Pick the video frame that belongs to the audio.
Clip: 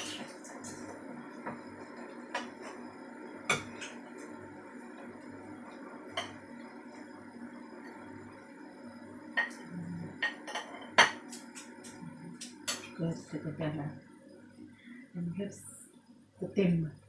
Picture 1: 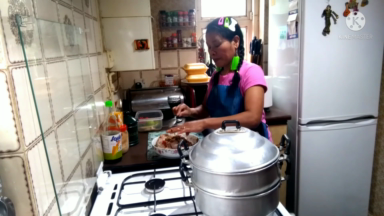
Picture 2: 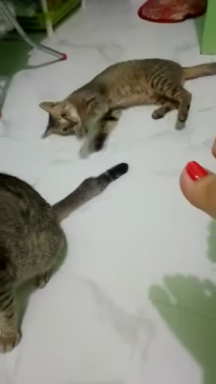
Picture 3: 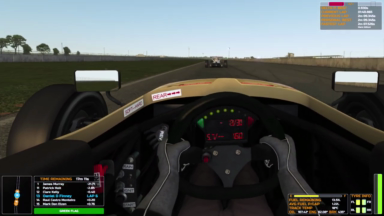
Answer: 1